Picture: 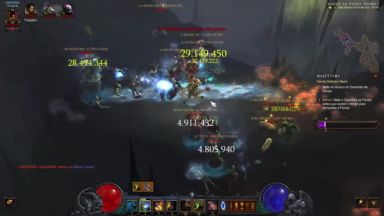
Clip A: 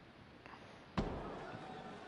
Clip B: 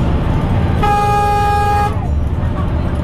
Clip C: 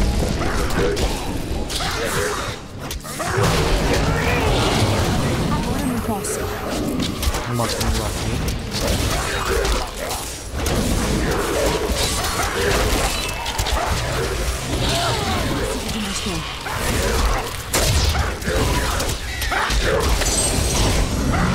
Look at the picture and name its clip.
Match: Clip C